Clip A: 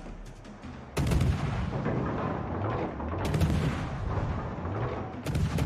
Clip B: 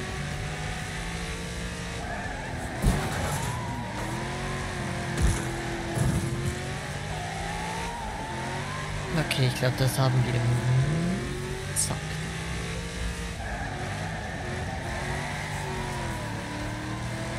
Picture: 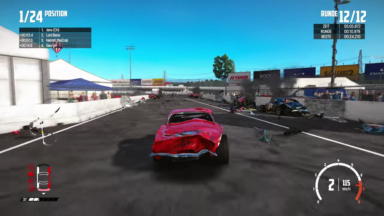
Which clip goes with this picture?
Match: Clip B